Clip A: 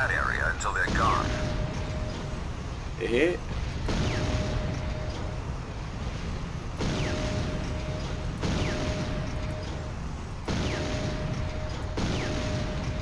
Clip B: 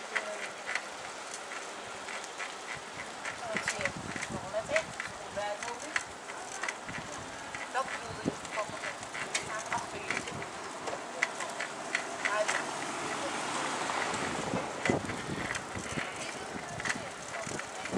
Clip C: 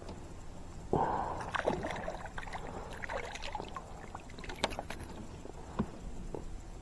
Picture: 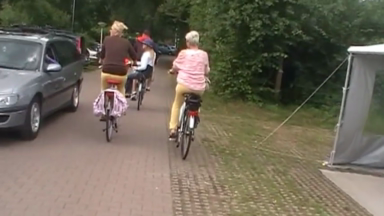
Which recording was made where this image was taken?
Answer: B